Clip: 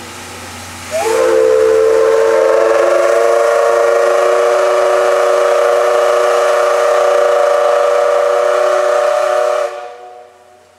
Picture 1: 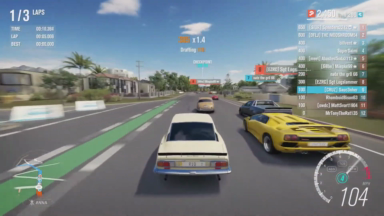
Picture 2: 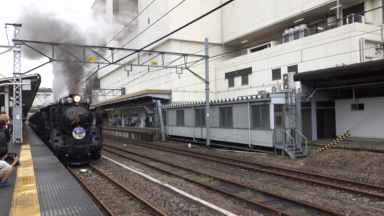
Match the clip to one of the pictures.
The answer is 2